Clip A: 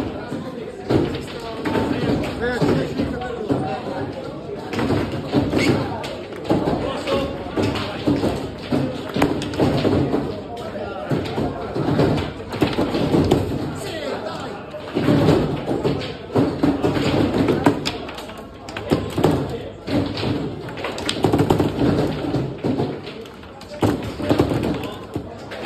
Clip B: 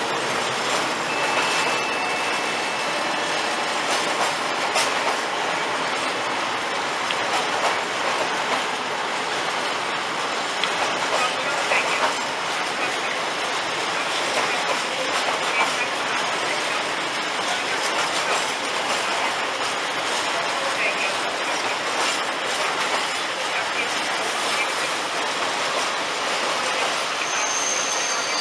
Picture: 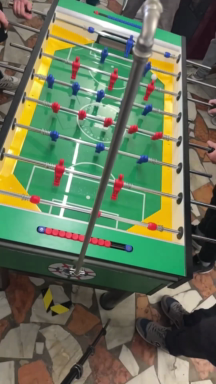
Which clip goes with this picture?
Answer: A